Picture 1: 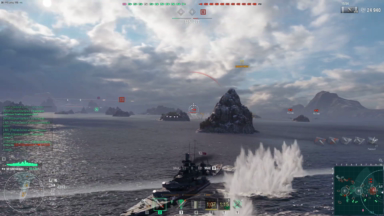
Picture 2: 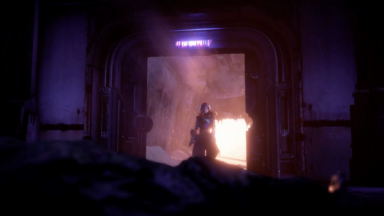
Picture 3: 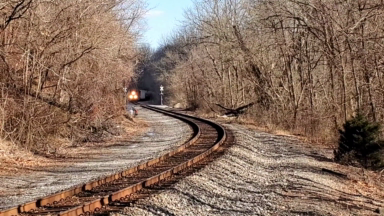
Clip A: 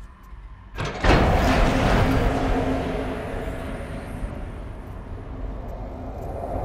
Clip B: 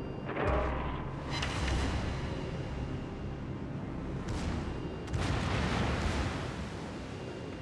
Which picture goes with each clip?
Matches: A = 2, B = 1